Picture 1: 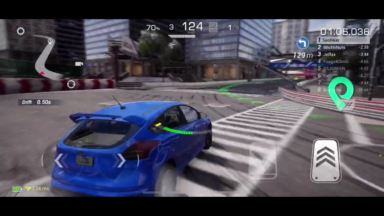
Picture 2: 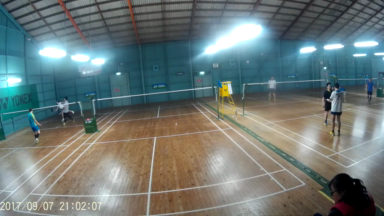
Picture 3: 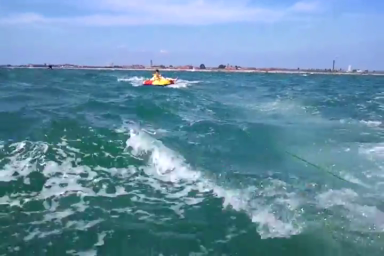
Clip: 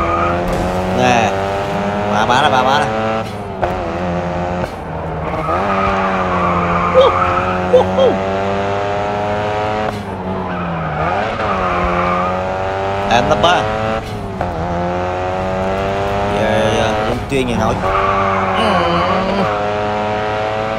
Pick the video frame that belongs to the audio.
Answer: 1